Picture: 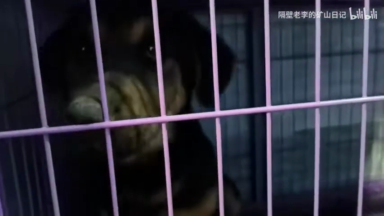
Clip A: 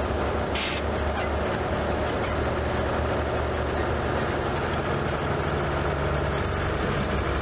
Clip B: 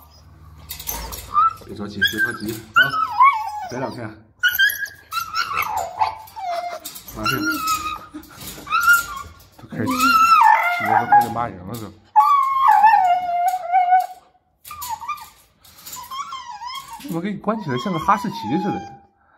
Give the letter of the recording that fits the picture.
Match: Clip B